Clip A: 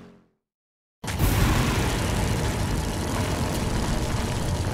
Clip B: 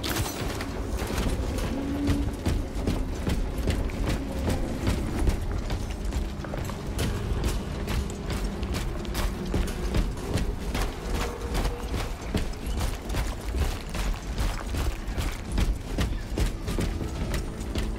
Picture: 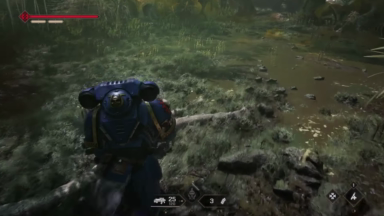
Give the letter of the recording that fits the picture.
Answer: B